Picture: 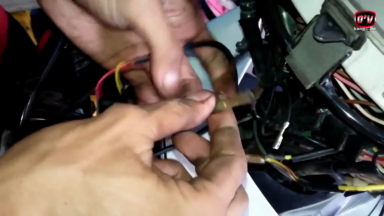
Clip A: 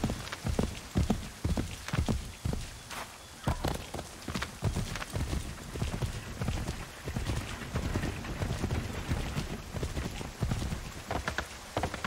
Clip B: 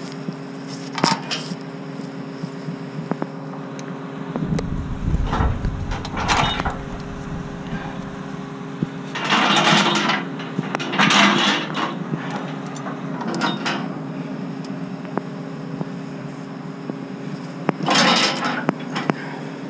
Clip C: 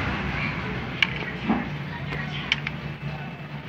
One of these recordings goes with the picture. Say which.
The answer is C